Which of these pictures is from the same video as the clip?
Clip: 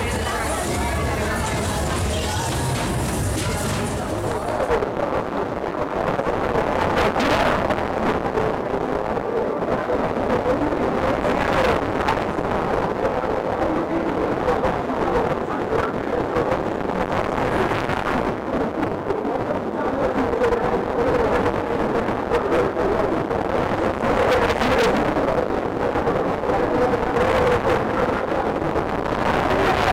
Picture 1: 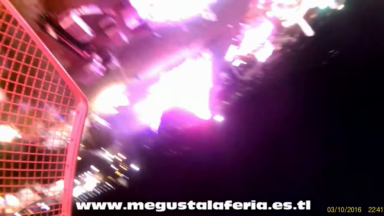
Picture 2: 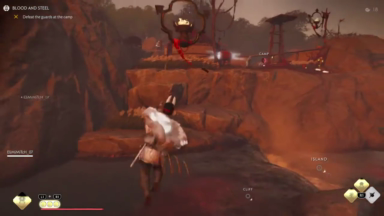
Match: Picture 1